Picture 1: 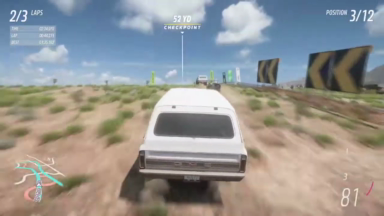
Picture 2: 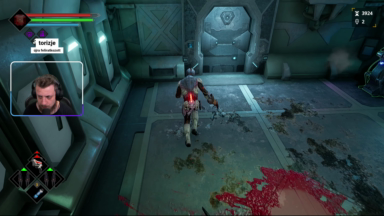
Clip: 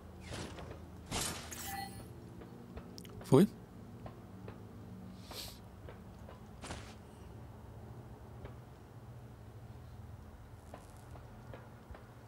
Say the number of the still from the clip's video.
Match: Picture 2